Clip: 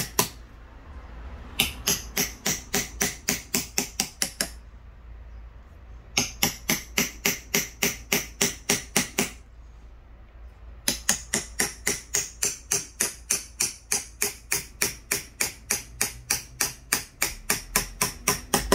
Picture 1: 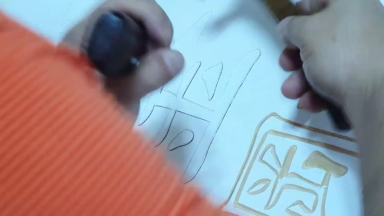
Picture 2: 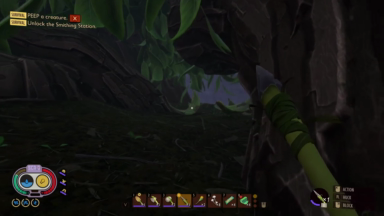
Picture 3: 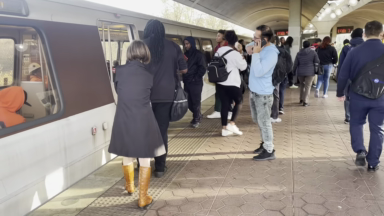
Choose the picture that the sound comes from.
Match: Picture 1